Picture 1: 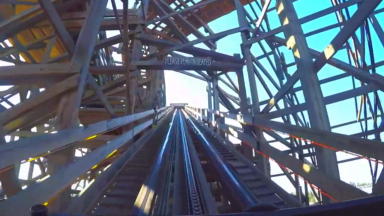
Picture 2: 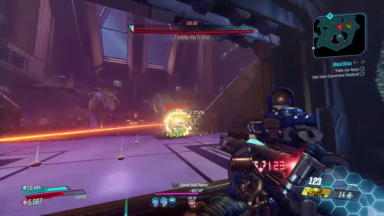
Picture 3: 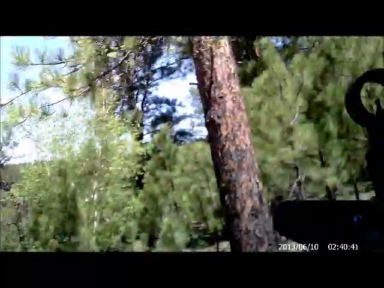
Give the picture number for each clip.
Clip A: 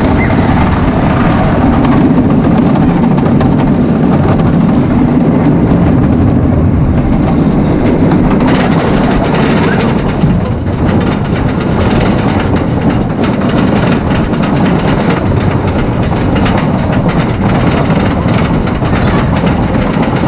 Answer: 1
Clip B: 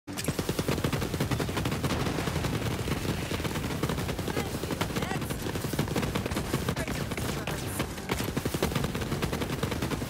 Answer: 2